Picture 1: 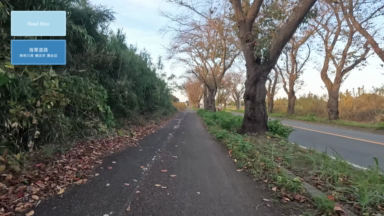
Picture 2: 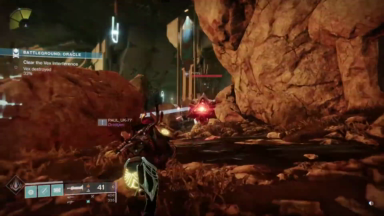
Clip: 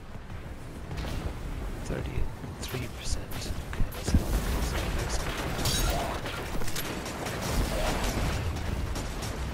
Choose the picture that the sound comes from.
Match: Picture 2